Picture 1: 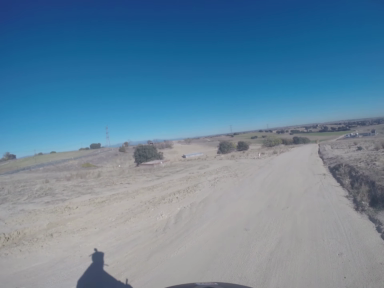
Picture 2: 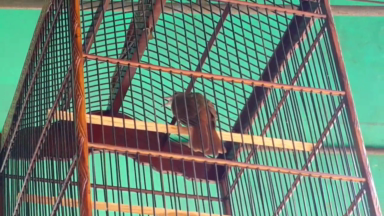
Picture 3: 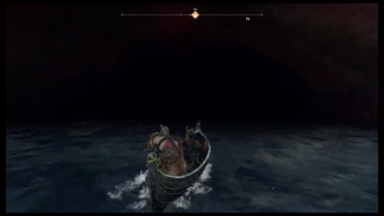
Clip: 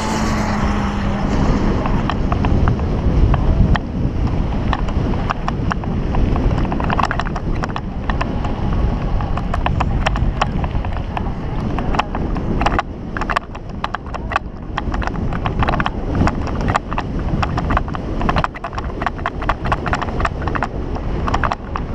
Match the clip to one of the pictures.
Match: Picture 1